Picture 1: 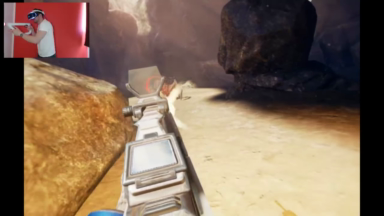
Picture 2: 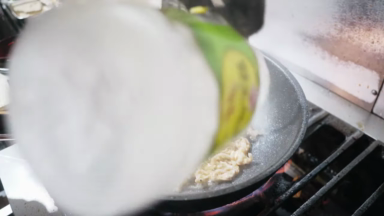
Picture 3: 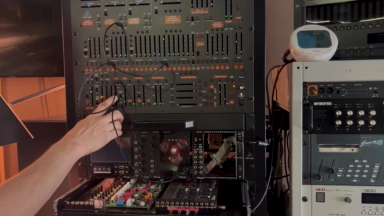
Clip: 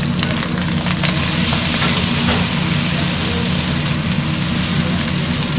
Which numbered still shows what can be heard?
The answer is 2